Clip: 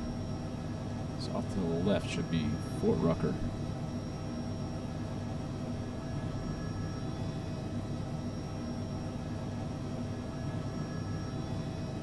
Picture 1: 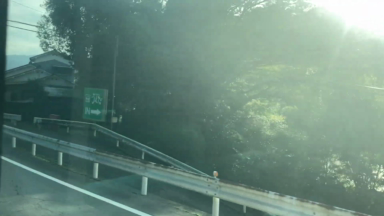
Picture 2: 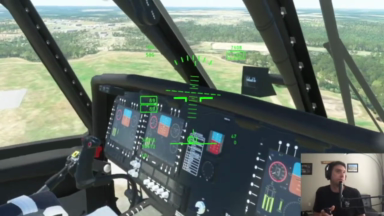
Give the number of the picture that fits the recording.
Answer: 2